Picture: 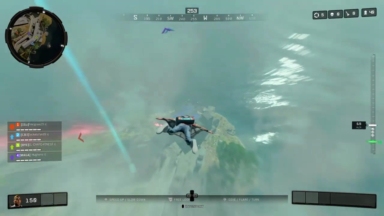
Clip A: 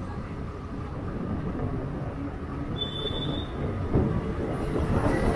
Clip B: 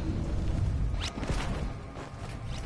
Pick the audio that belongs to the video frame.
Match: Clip B